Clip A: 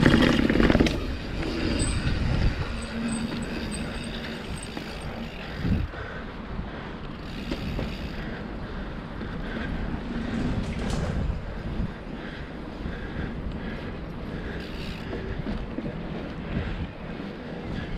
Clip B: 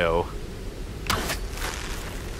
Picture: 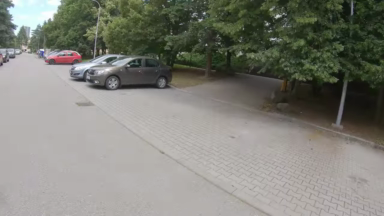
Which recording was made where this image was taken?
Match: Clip A